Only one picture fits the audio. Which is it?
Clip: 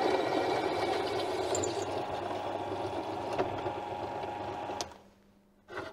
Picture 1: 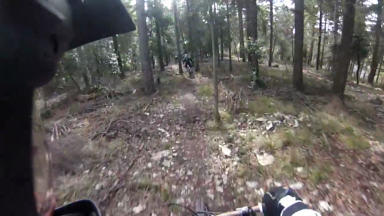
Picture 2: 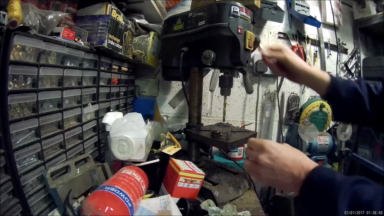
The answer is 2